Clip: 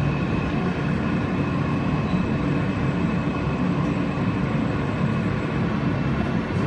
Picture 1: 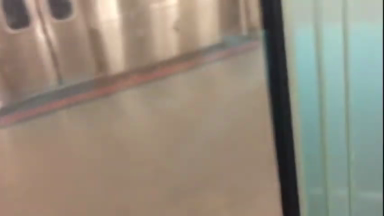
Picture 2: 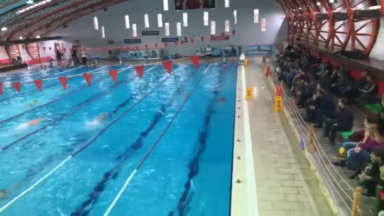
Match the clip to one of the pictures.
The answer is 1